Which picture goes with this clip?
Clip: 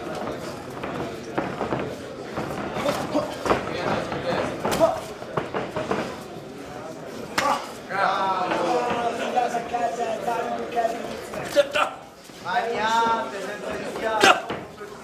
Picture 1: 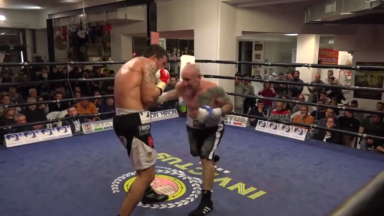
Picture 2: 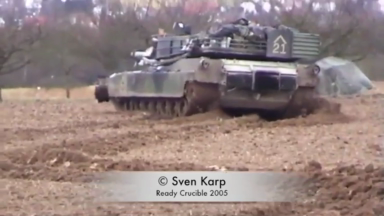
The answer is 1